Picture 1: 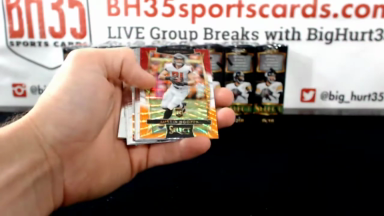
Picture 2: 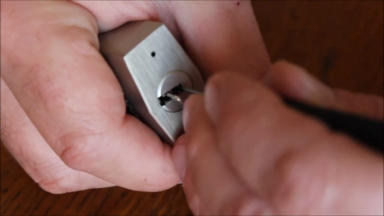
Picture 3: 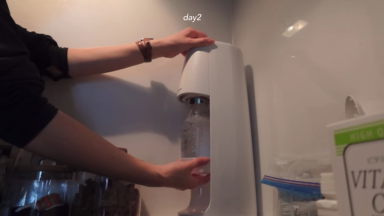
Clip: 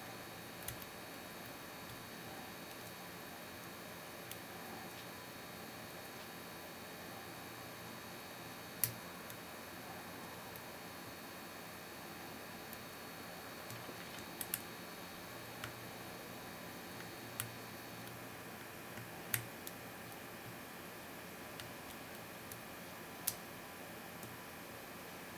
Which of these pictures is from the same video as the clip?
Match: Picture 2